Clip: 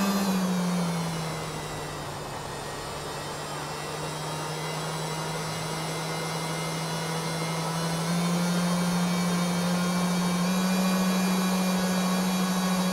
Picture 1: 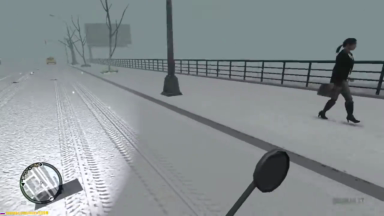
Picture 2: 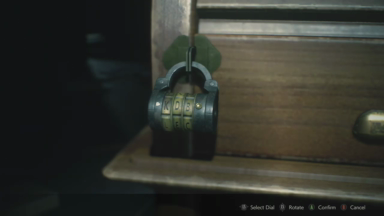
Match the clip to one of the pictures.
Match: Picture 1